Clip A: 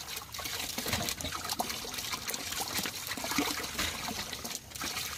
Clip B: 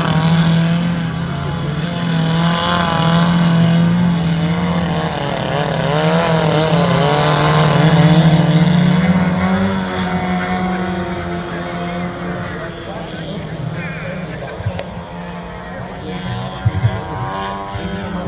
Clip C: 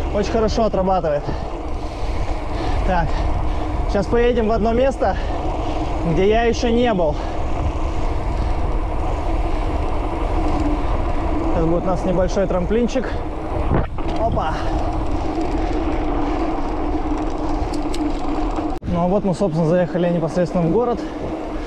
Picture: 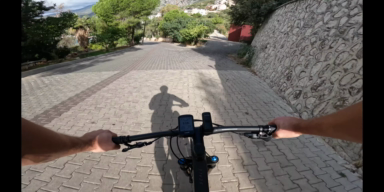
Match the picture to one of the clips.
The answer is C